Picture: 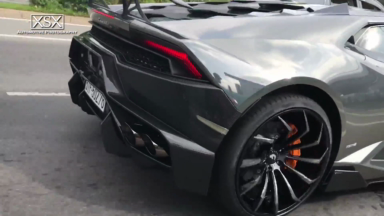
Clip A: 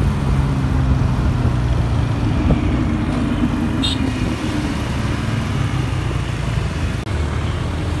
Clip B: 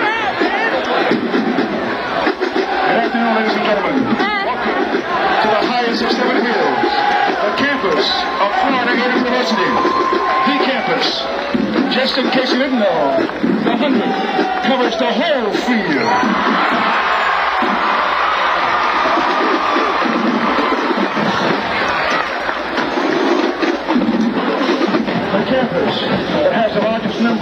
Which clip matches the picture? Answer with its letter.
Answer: A